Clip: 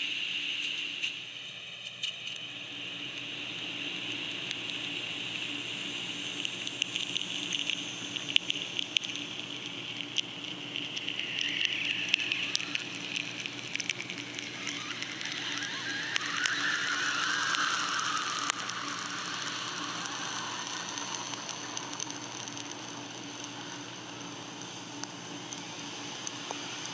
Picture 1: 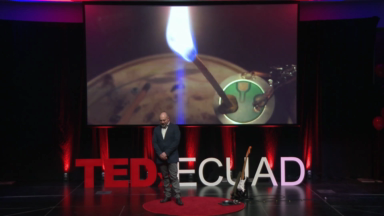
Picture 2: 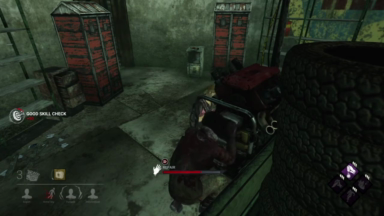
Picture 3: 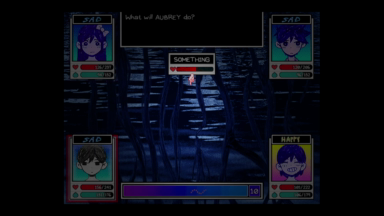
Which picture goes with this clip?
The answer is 1